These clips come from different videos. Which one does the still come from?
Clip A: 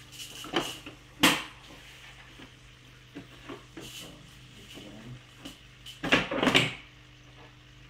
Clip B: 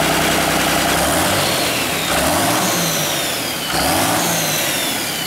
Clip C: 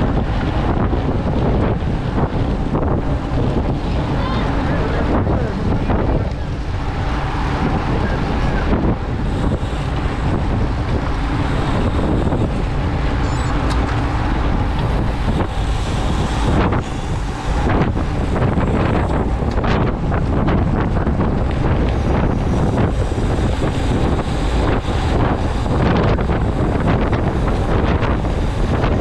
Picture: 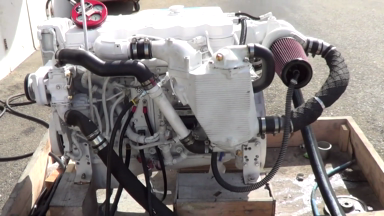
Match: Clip B